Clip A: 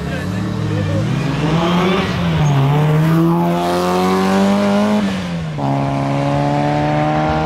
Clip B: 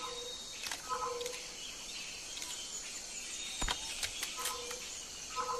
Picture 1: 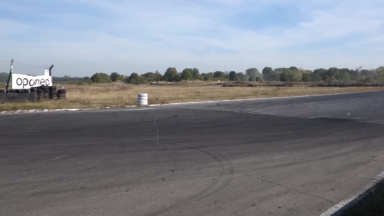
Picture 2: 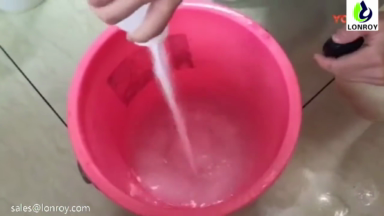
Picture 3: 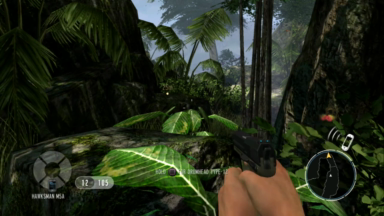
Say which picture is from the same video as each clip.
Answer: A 1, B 3